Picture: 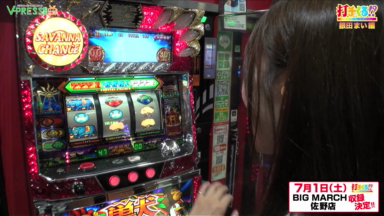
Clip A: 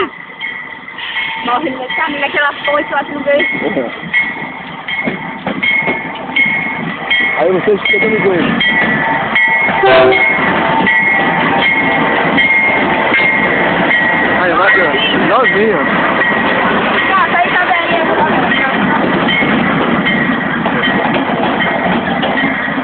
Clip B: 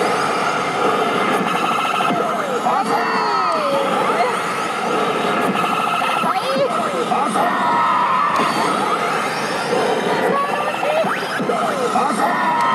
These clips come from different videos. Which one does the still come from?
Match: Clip B